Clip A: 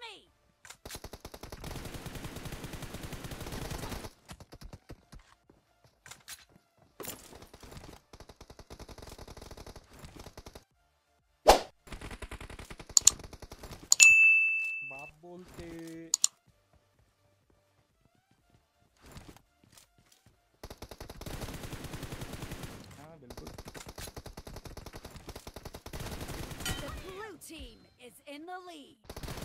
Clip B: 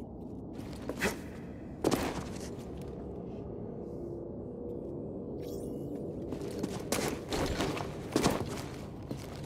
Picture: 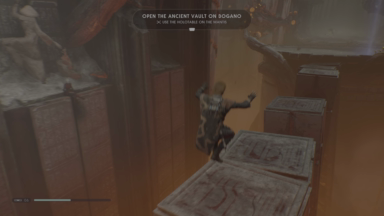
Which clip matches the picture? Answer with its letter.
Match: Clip B